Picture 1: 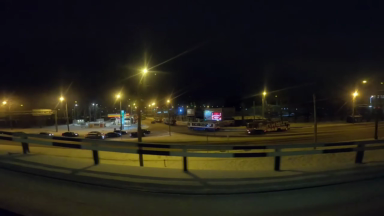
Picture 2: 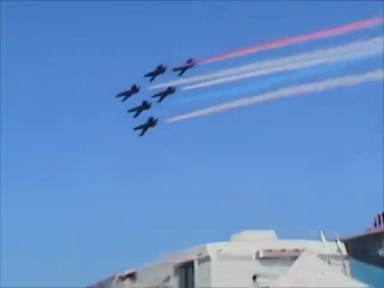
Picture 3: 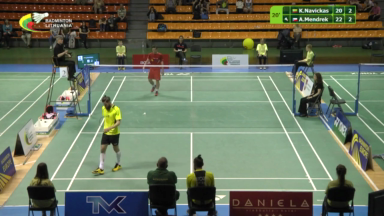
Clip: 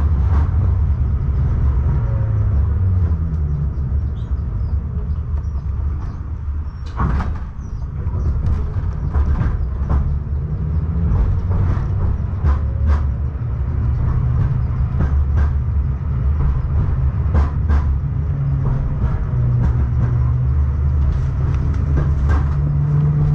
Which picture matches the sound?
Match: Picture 1